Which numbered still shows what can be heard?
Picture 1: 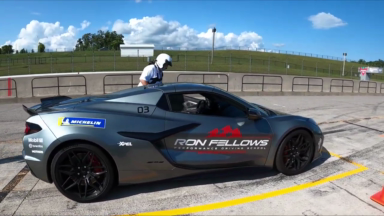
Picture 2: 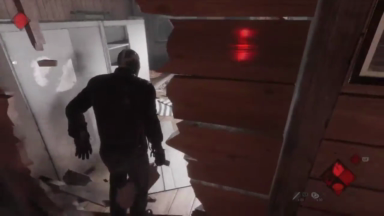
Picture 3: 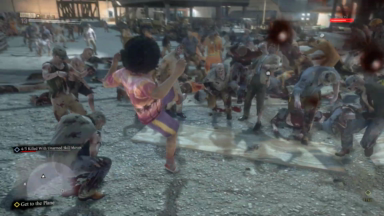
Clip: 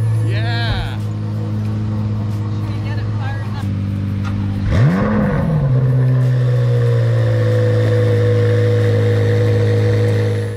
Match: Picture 1